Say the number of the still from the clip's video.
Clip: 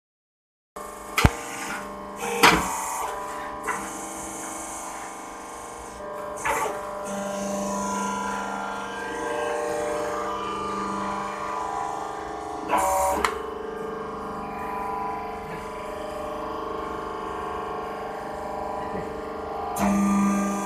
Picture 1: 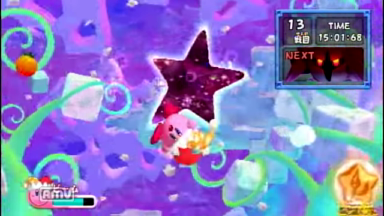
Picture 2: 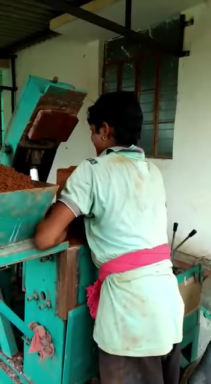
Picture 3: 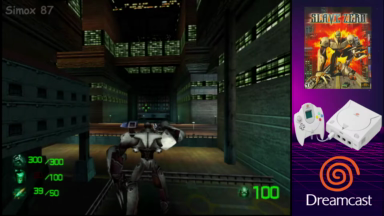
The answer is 2